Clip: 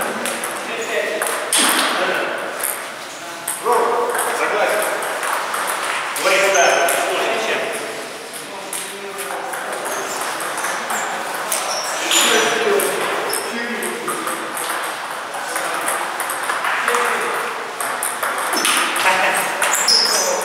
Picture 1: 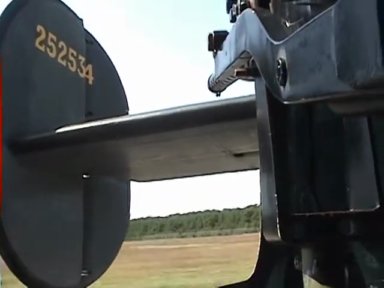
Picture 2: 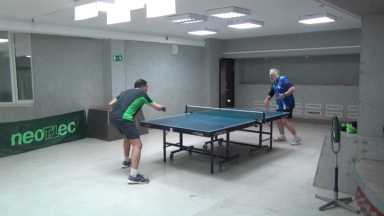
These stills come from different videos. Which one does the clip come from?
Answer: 2